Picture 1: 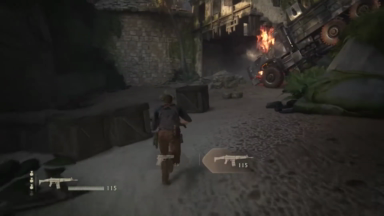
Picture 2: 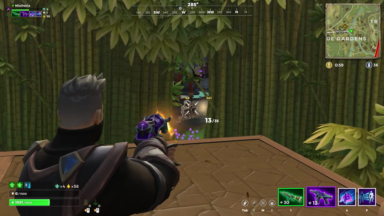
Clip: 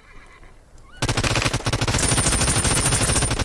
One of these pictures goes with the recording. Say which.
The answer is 2